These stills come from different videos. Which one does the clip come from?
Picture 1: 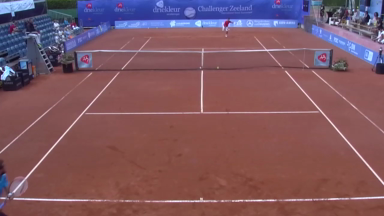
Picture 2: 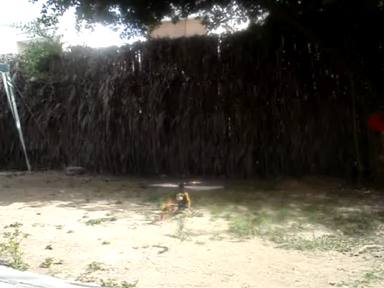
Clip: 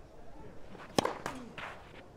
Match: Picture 1